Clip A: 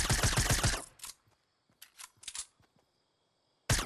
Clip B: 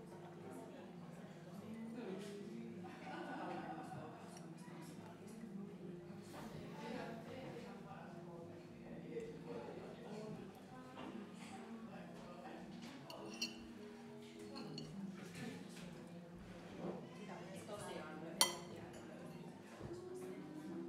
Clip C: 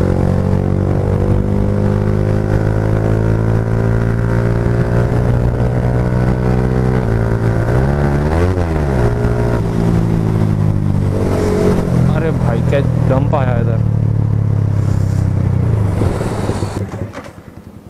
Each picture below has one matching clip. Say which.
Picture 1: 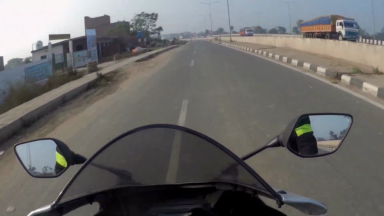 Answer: C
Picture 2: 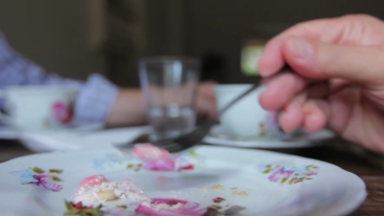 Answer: B